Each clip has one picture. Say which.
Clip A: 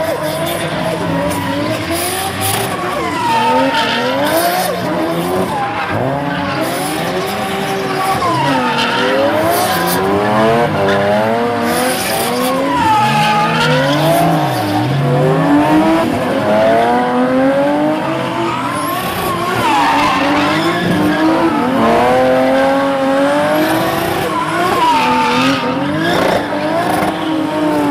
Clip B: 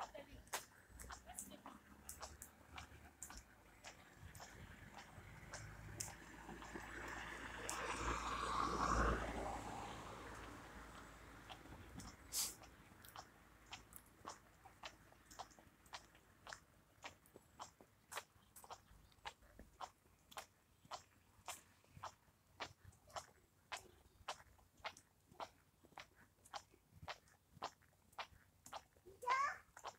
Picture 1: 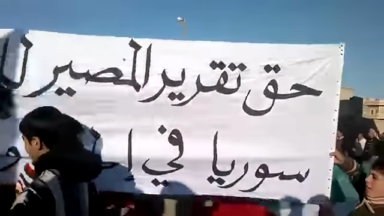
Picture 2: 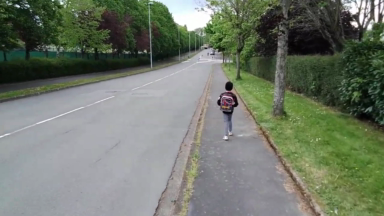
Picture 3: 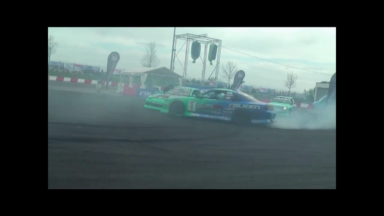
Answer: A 3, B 2